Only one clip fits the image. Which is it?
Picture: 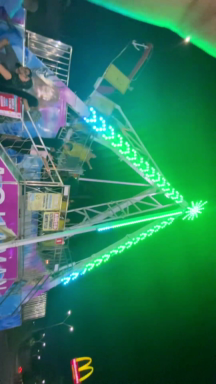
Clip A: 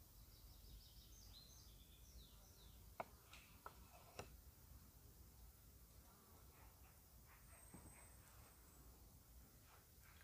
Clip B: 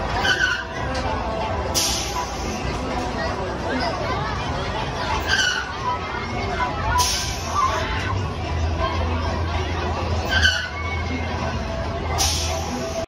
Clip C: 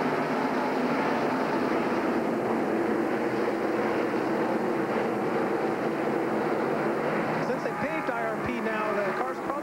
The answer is B